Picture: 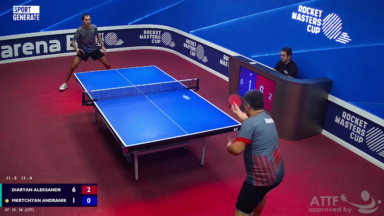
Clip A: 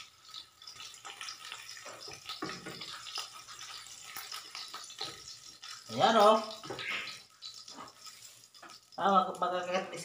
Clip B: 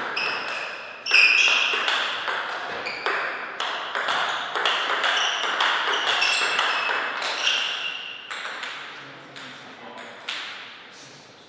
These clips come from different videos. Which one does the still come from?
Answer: B